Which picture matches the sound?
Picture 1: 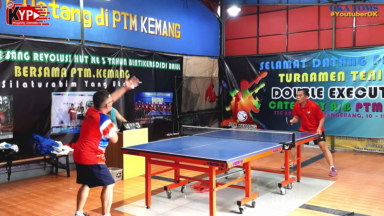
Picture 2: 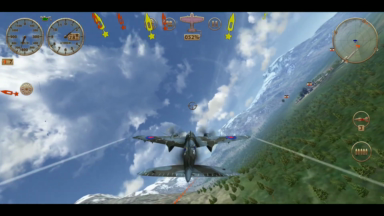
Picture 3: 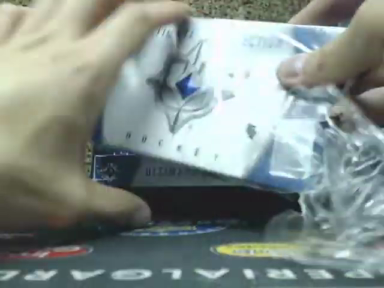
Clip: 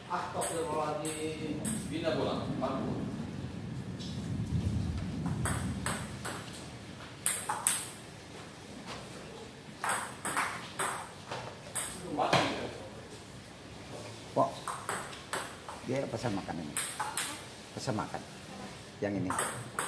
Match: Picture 1